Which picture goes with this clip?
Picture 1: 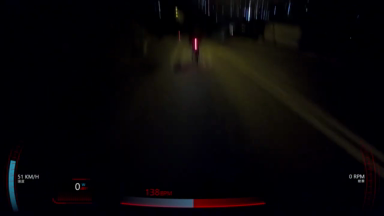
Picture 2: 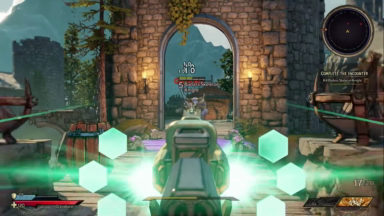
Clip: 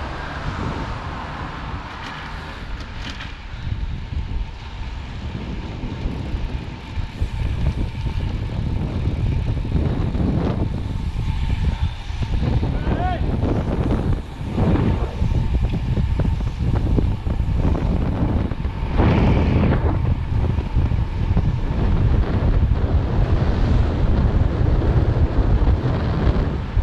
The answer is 1